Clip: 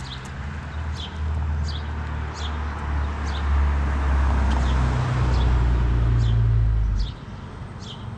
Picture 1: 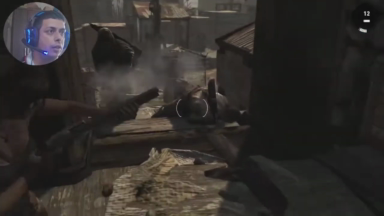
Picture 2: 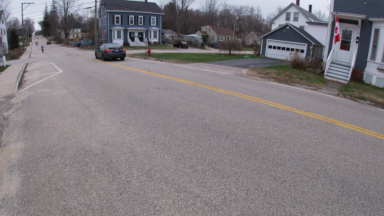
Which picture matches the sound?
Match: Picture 2